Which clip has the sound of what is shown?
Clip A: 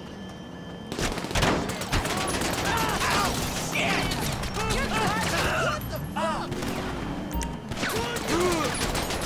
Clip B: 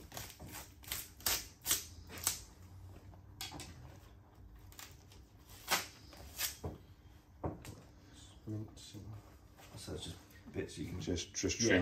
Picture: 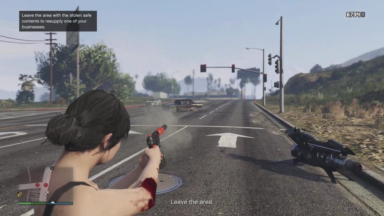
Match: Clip A